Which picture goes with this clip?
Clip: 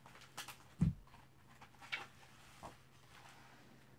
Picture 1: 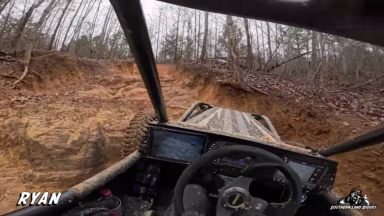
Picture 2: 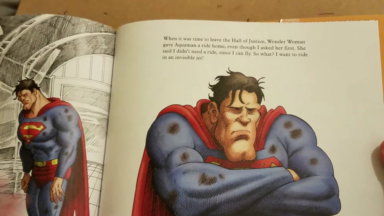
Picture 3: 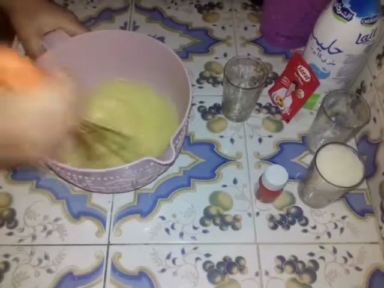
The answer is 2